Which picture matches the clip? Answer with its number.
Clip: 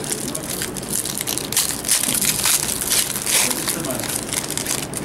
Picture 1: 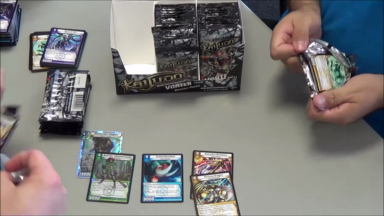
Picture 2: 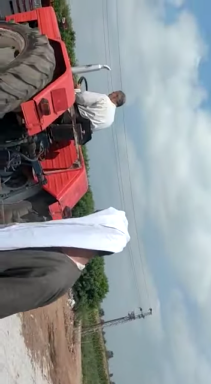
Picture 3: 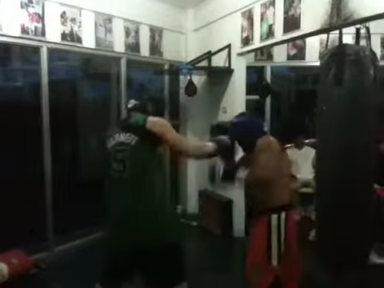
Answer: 1